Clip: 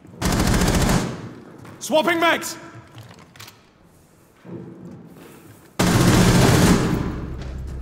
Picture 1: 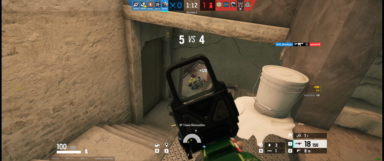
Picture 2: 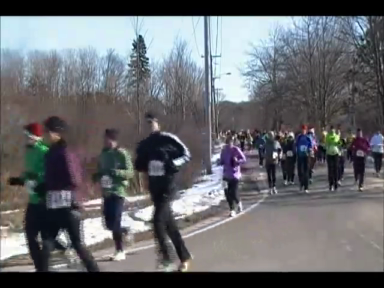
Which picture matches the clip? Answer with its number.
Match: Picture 1